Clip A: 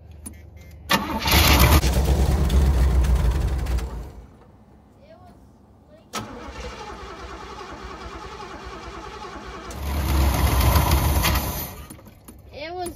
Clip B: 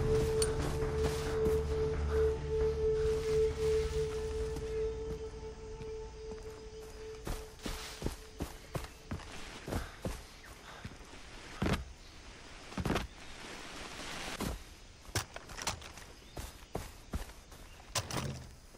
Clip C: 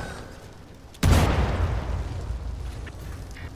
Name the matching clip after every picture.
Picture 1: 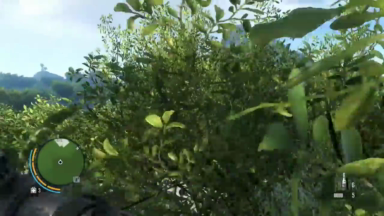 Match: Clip B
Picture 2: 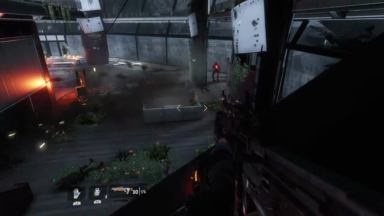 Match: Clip C